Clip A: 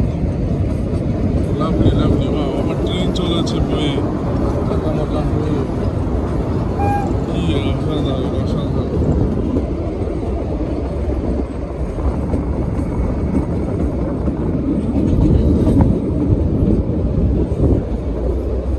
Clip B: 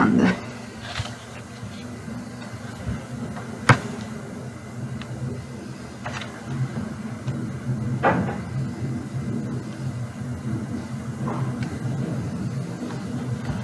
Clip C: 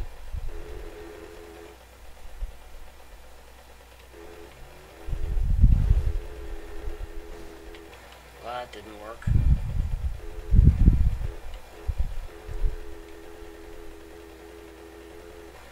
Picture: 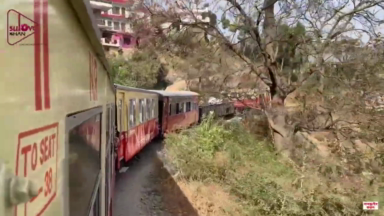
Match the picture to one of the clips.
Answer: A